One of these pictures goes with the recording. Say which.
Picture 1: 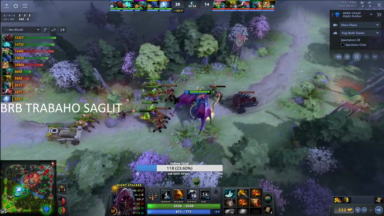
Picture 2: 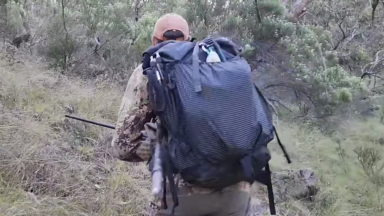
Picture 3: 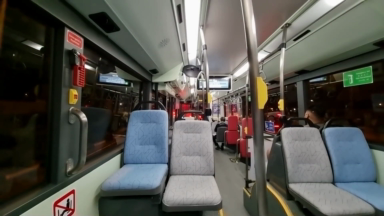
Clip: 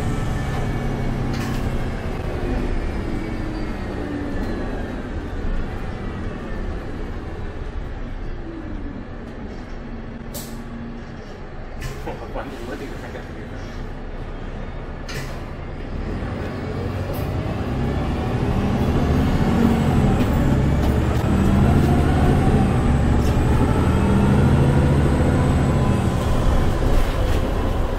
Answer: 3